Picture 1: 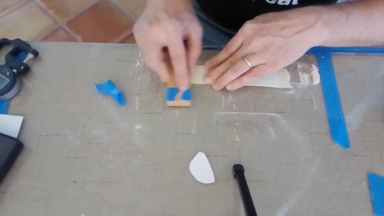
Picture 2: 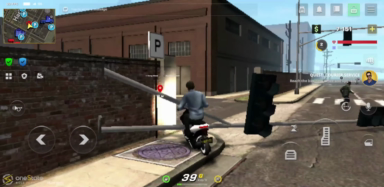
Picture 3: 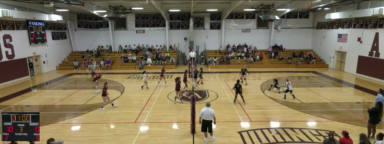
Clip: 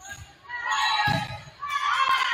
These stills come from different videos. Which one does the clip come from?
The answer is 3